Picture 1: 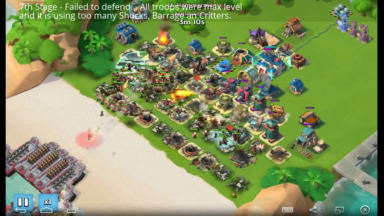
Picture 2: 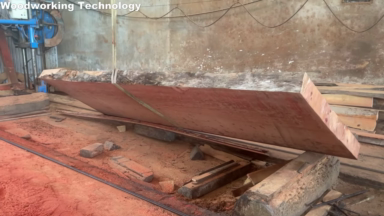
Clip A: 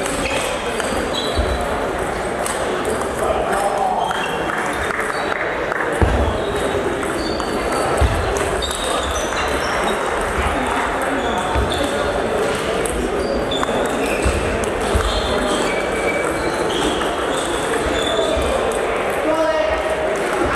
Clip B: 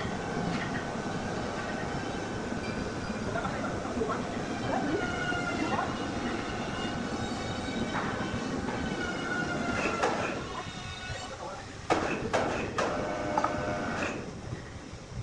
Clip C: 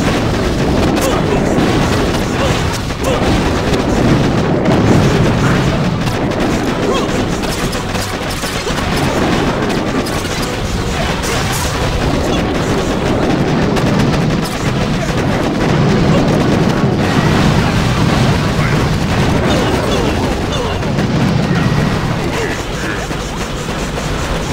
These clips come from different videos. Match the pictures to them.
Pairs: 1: C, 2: B